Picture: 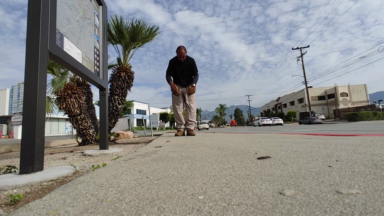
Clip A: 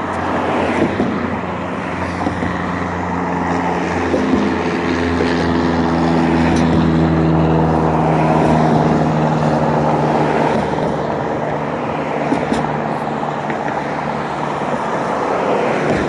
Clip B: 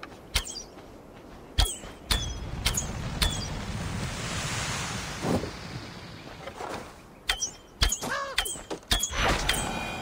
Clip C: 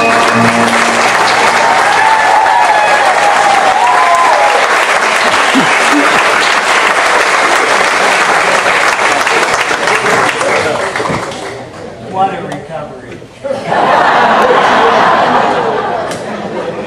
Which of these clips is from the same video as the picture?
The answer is A